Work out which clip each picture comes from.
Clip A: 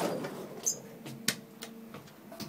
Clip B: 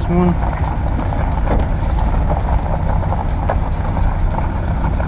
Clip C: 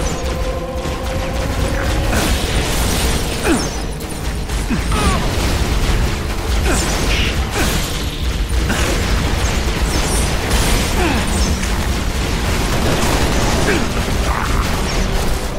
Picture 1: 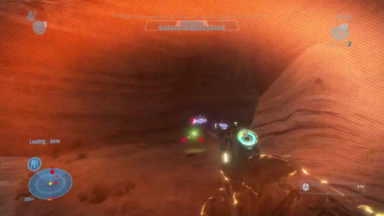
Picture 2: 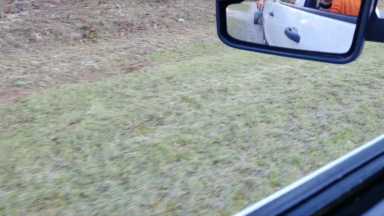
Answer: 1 C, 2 B